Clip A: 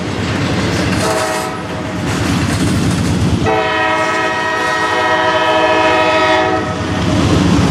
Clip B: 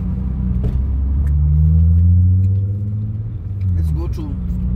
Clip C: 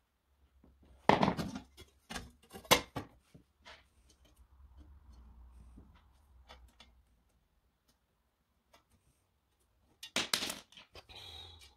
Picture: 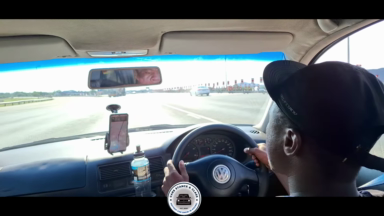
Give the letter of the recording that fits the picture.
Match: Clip B